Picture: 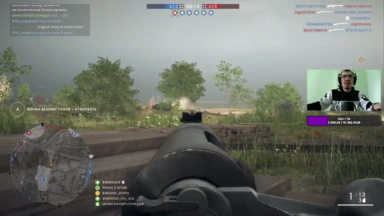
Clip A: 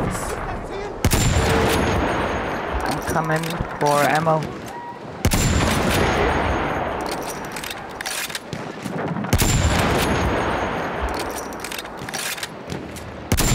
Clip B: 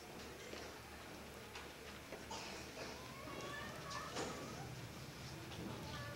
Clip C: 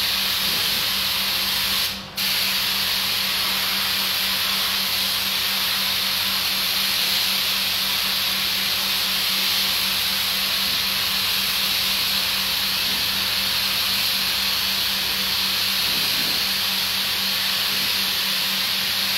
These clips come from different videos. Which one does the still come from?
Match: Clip A